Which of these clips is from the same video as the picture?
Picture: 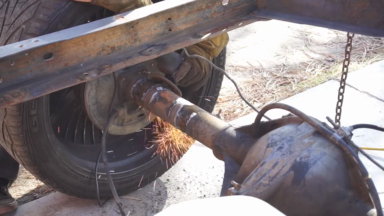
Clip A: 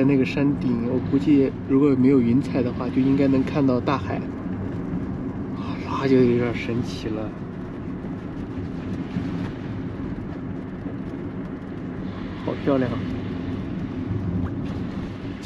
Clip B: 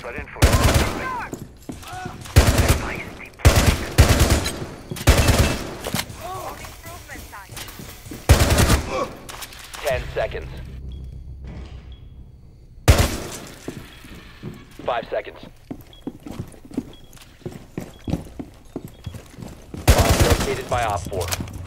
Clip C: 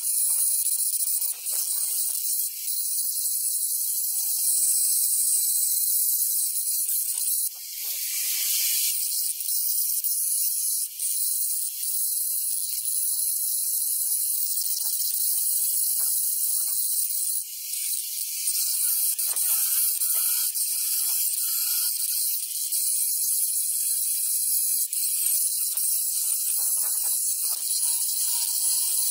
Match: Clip C